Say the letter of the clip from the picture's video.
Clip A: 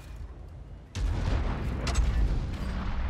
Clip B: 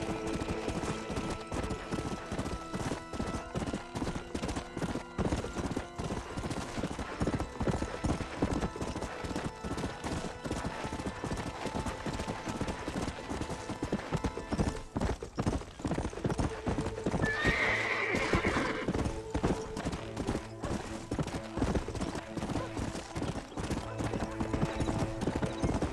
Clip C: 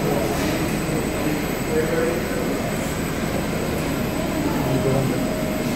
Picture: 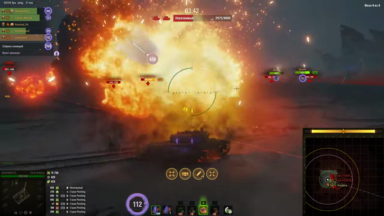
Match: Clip A